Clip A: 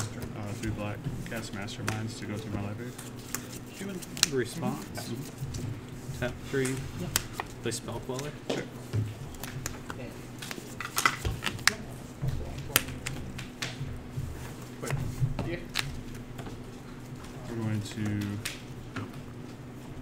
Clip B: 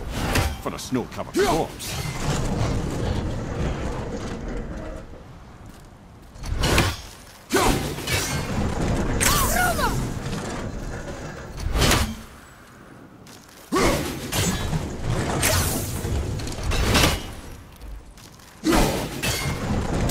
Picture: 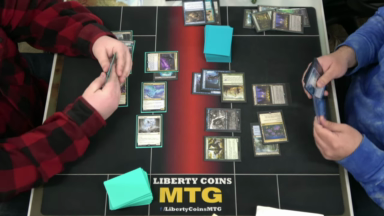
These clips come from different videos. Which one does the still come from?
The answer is A